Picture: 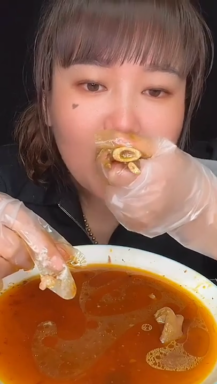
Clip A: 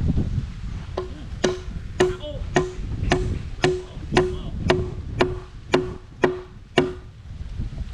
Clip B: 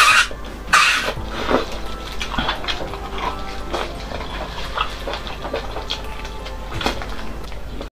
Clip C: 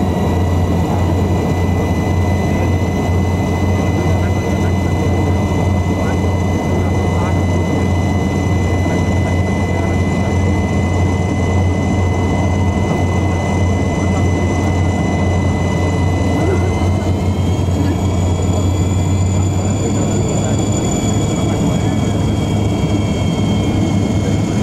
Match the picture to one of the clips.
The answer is B